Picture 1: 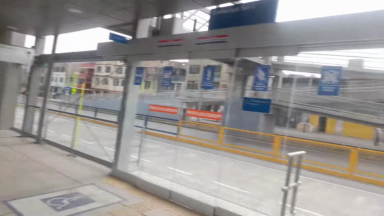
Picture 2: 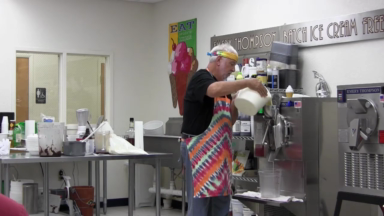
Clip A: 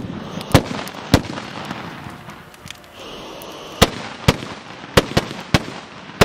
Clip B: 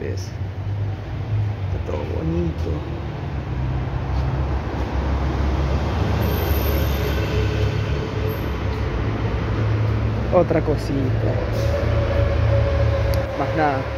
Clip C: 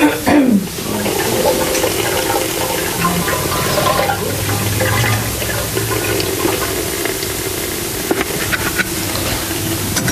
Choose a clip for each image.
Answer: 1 B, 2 C